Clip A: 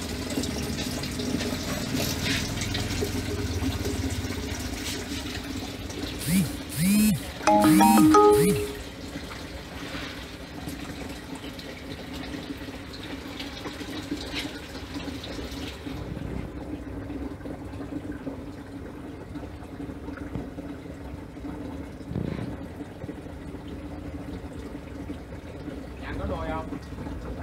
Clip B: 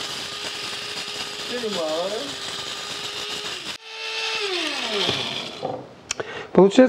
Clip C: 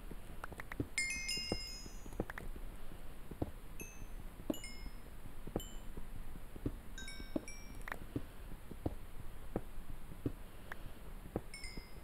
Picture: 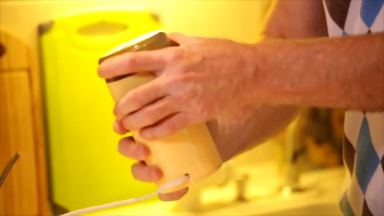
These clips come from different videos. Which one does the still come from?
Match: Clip B